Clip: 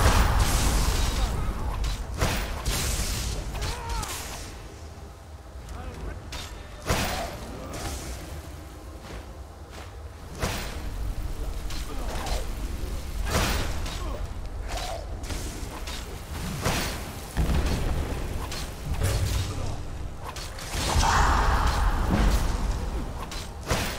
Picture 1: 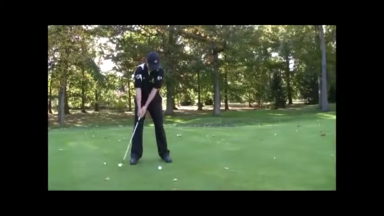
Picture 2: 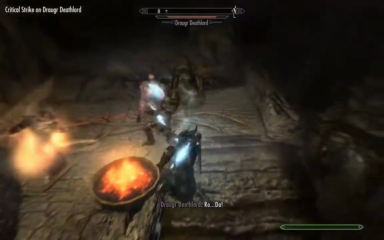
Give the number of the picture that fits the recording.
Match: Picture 2